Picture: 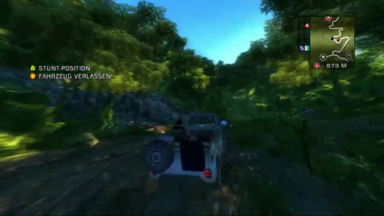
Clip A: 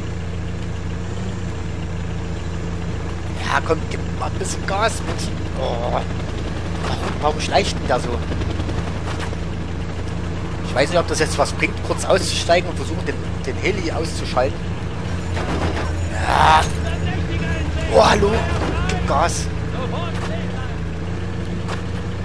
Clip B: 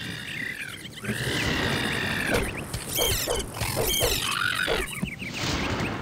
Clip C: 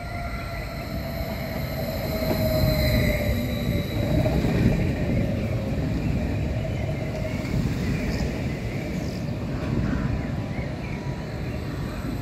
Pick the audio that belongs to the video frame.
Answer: A